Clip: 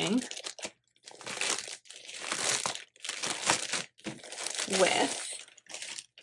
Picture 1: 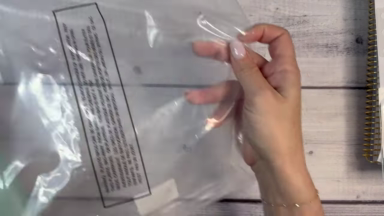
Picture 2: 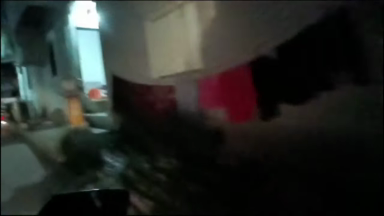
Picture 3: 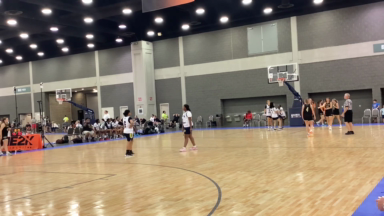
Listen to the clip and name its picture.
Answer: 1